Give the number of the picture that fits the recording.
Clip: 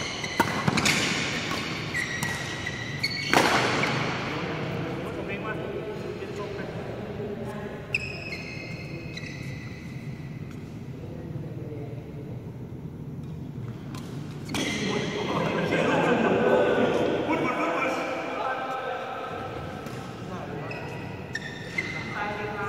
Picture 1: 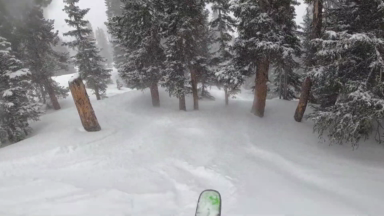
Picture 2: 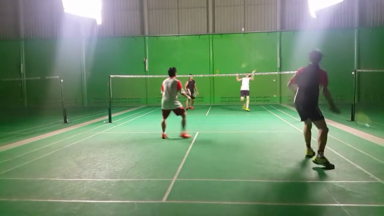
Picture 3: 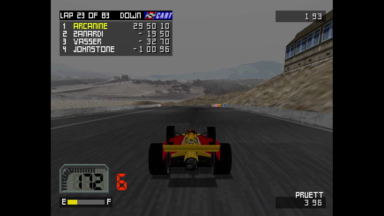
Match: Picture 2